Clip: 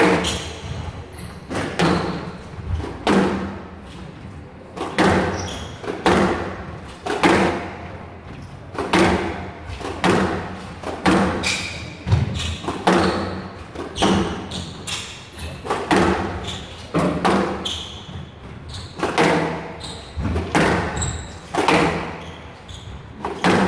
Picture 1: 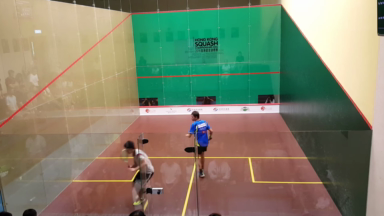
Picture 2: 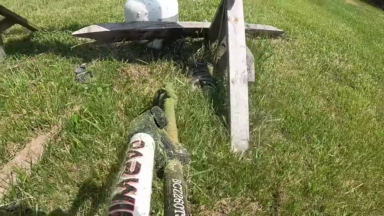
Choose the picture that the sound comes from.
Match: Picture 1